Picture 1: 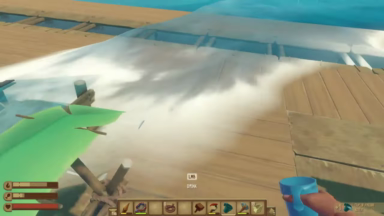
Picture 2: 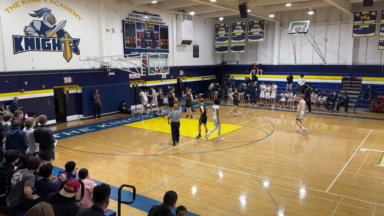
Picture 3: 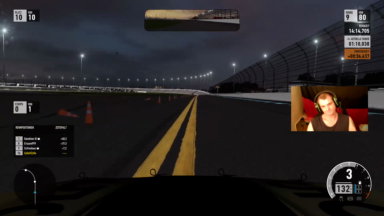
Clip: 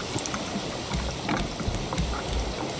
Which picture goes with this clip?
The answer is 1